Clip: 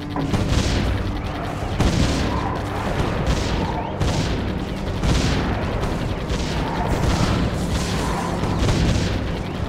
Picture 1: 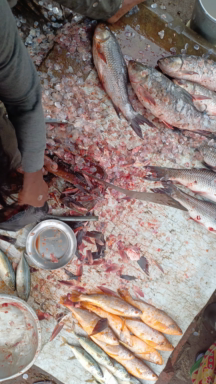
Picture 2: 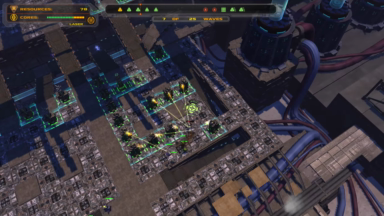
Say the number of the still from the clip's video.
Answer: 2